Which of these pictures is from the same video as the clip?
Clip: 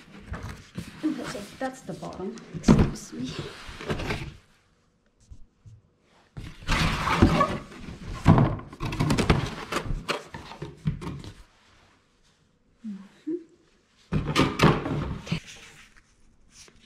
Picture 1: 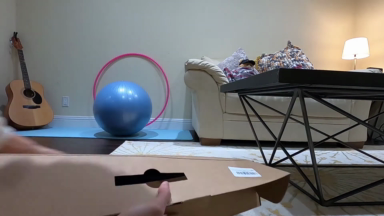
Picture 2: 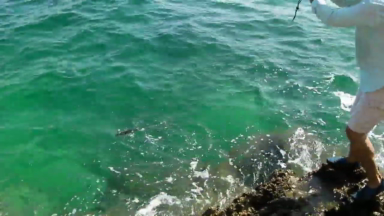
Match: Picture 1